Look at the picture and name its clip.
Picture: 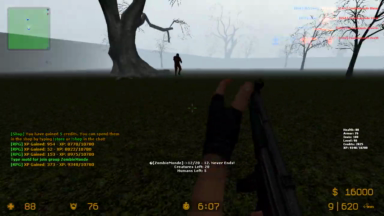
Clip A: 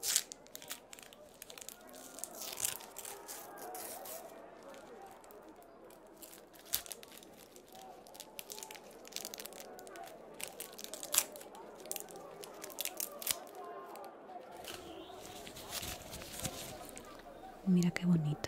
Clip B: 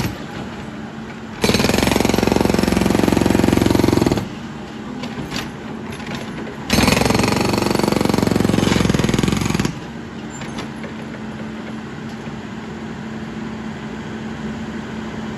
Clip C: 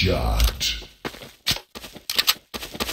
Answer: C